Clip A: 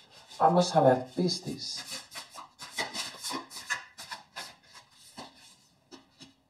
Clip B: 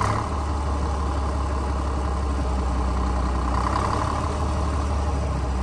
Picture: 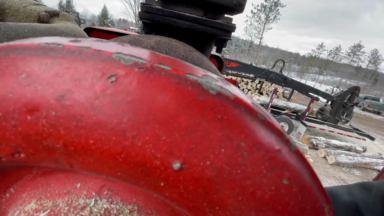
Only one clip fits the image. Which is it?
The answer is B